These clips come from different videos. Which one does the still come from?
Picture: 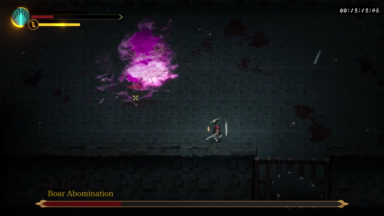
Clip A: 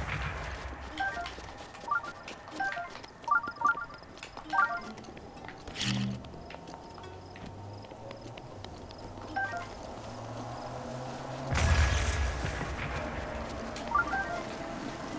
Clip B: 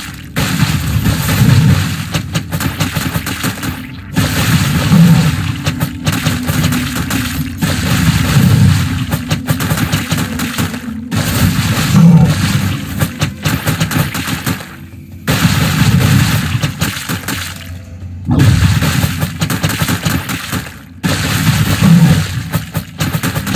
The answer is B